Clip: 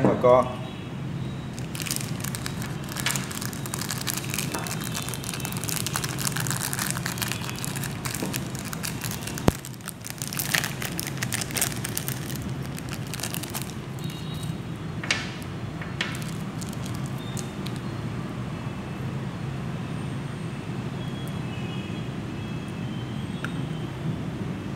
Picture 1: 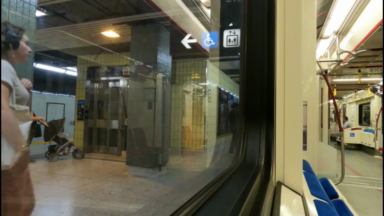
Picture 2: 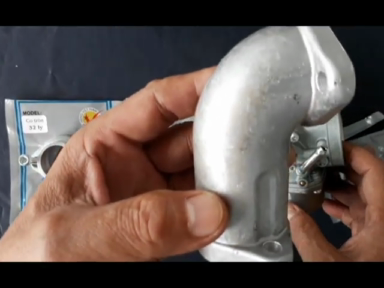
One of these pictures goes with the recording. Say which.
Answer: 2